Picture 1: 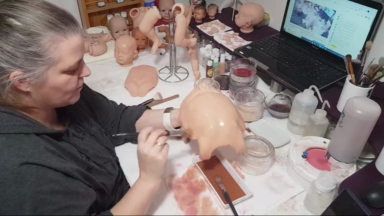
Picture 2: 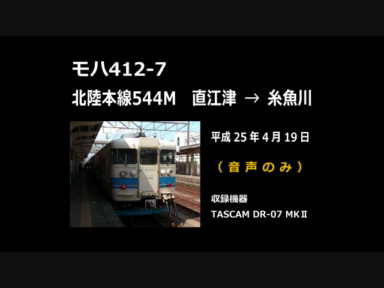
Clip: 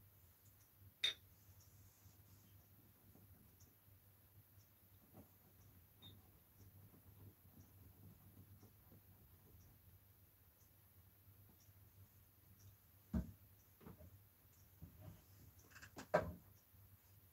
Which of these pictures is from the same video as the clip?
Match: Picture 1